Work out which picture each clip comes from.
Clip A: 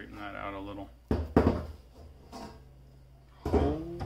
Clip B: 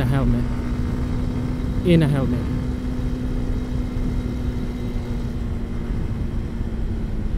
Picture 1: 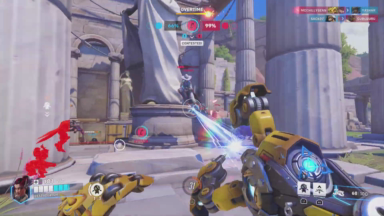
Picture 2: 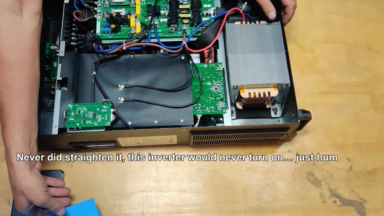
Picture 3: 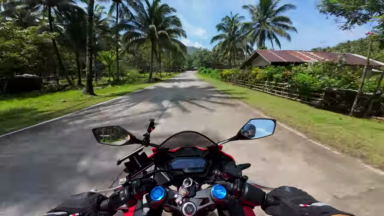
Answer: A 2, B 3